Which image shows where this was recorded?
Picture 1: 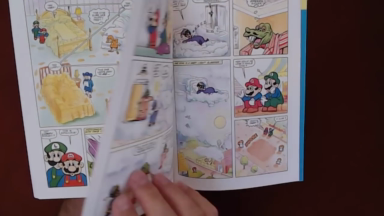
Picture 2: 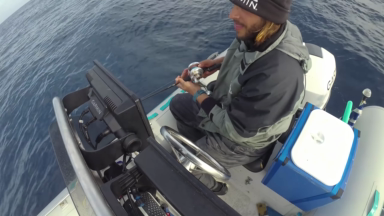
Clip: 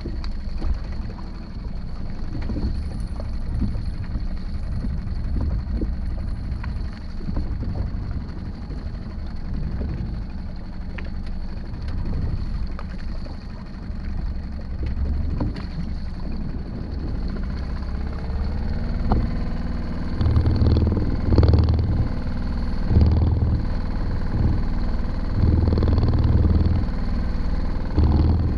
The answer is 2